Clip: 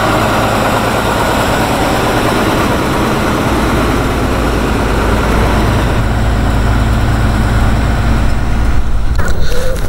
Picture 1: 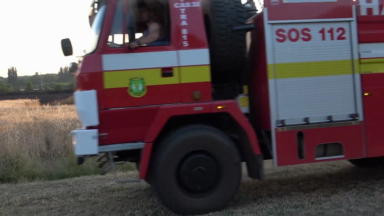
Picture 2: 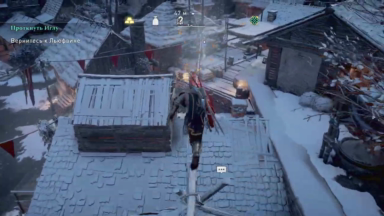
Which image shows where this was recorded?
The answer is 1